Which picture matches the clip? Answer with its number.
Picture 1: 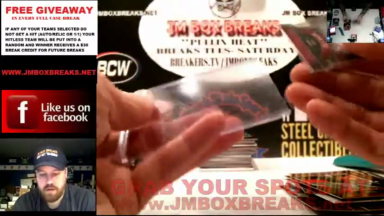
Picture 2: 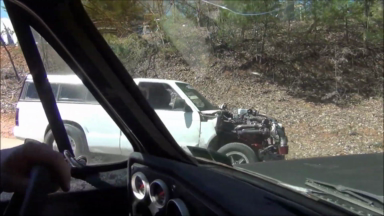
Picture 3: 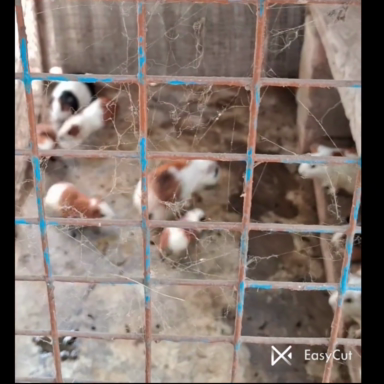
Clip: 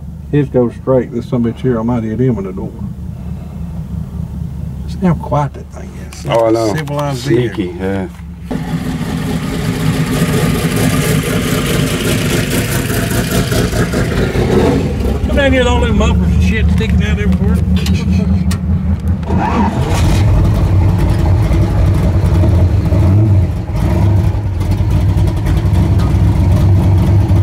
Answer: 2